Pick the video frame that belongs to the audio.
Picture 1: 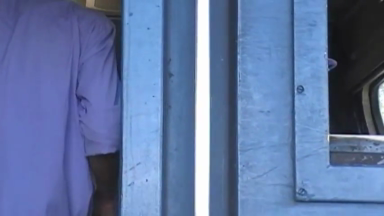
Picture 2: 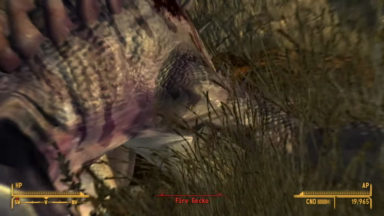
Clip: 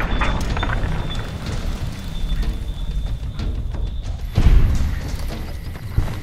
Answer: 2